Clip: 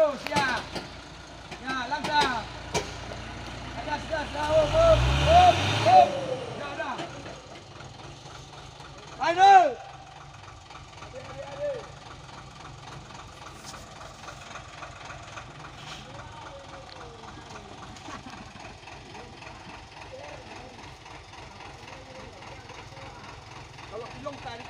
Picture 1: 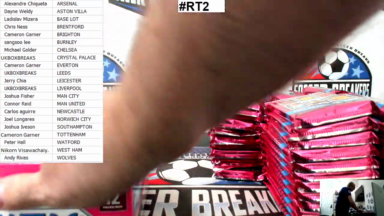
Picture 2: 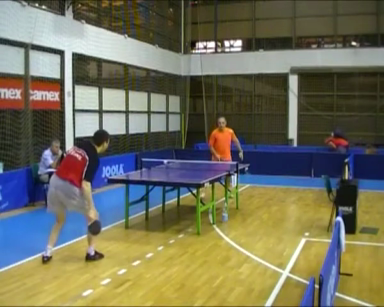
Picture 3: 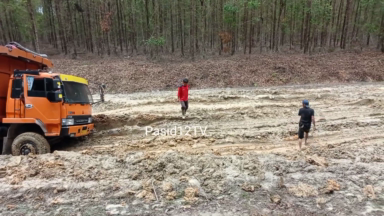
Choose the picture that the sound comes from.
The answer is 3